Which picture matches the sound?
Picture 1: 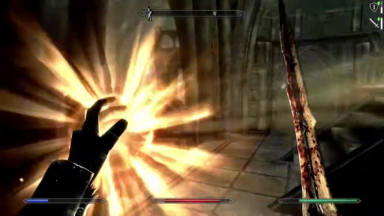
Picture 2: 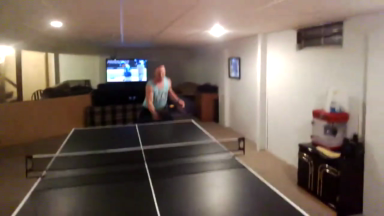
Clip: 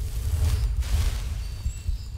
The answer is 1